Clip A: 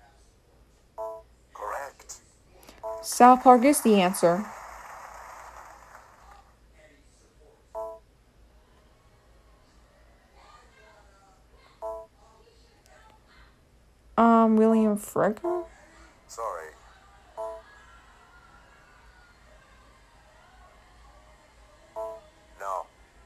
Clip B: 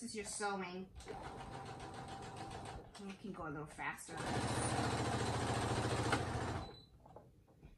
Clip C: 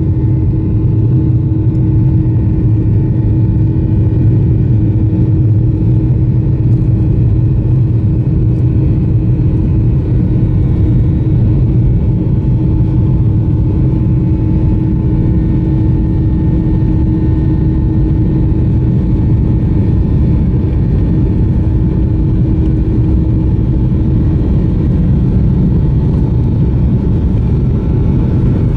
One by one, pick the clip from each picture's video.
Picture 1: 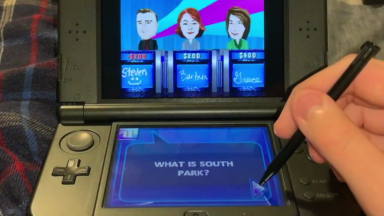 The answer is A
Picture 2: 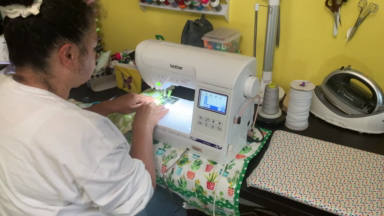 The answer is B